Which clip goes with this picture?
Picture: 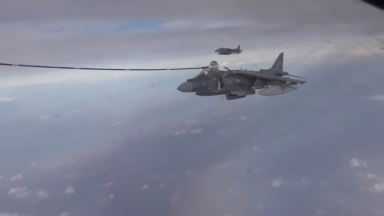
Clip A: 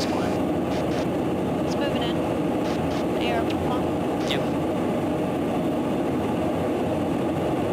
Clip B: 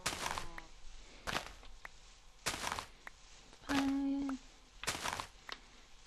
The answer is A